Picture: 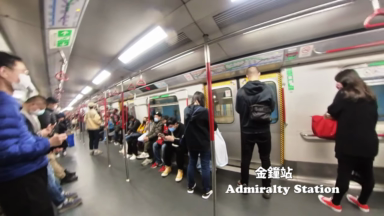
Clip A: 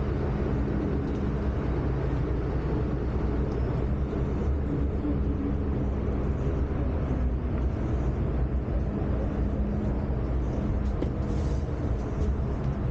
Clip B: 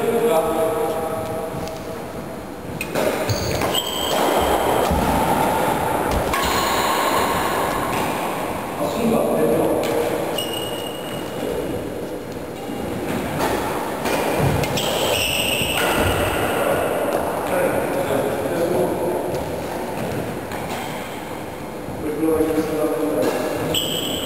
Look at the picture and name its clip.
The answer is A